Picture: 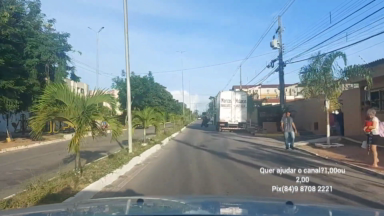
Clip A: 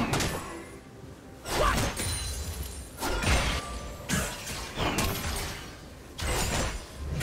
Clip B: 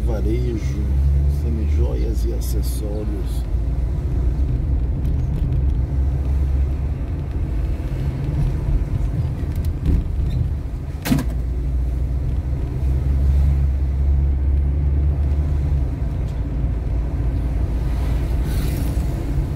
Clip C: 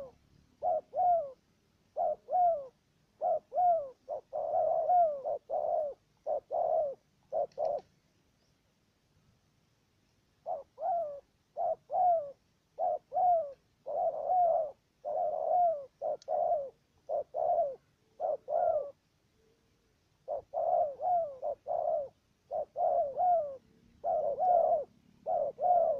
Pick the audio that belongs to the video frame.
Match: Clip B